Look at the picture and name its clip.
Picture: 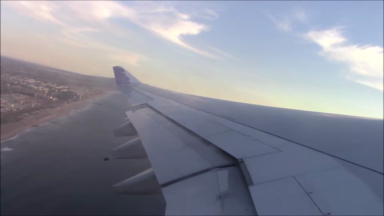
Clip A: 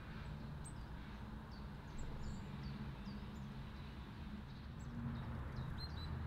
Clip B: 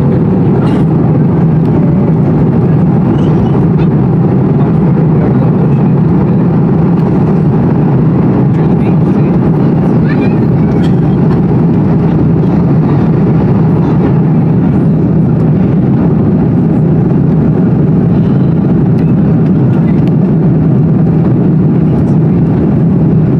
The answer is B